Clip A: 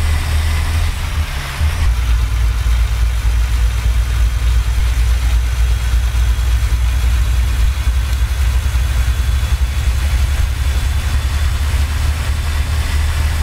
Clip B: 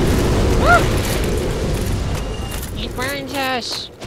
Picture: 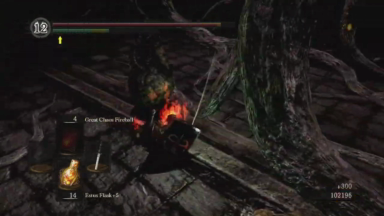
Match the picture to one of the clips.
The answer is B